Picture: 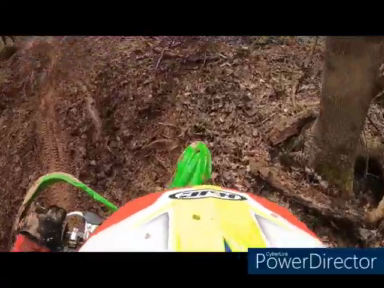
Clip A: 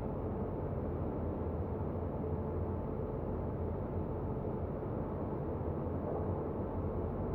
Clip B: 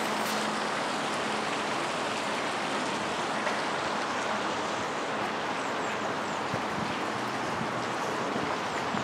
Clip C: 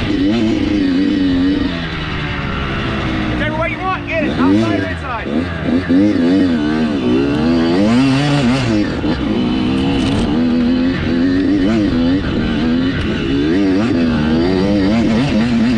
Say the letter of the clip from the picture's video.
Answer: C